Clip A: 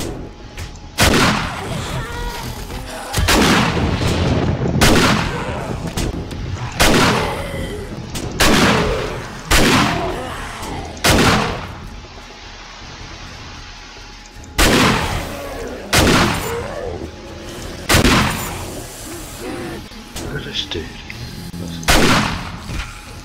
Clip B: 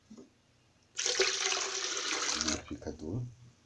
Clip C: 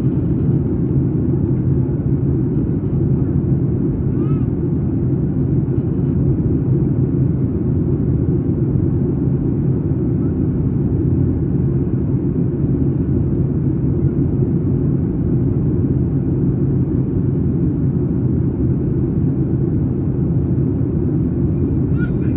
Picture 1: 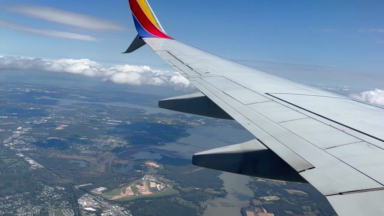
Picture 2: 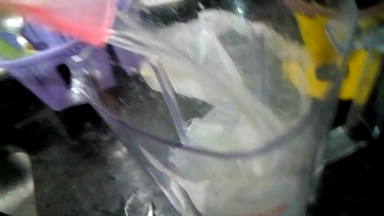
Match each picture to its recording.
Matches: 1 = C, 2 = B